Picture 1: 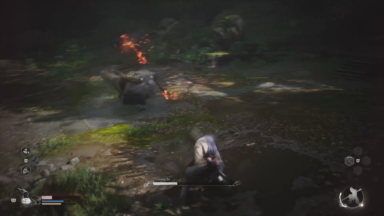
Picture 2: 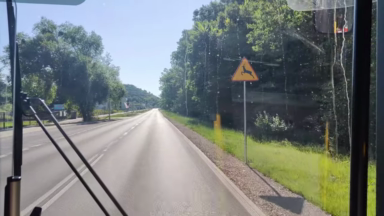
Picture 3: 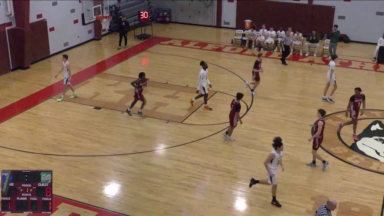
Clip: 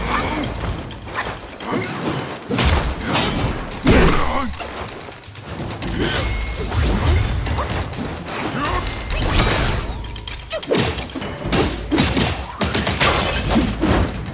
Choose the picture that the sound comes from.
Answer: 1